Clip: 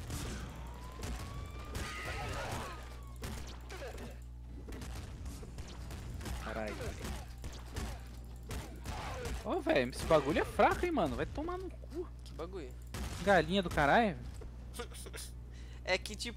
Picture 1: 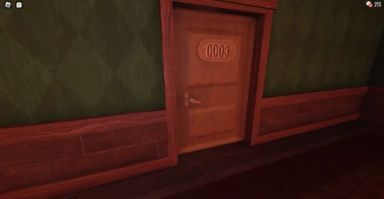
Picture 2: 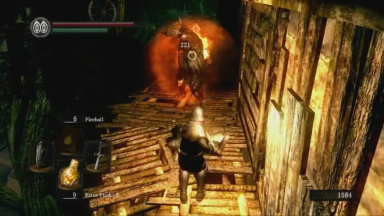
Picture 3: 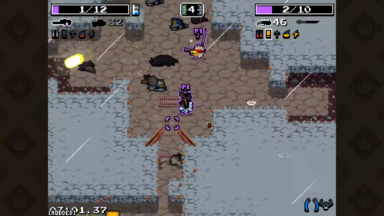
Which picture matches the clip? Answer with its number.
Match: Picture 3